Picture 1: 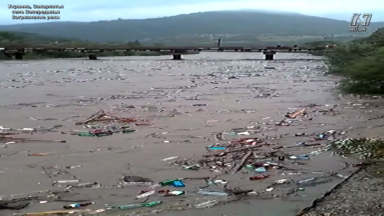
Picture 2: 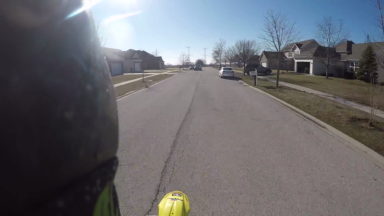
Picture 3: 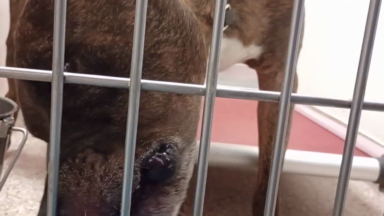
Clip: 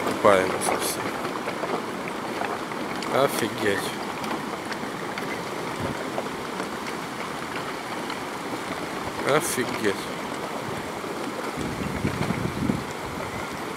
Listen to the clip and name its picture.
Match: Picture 1